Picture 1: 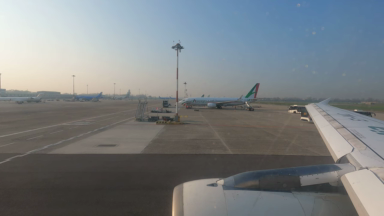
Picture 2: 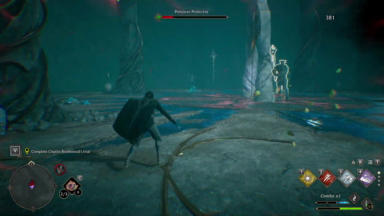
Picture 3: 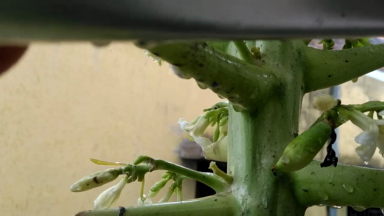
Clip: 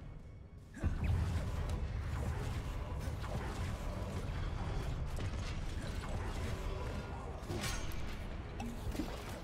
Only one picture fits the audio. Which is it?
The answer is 2